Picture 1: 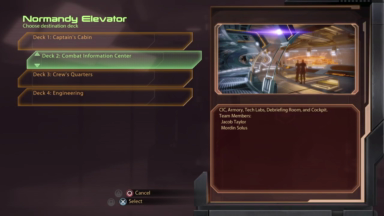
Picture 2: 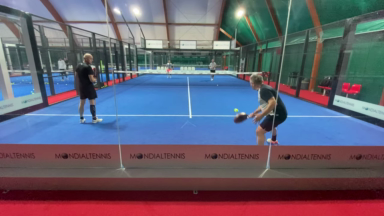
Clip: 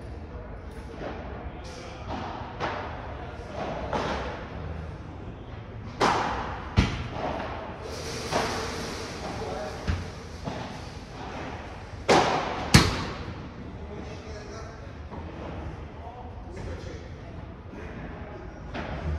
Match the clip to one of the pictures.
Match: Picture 2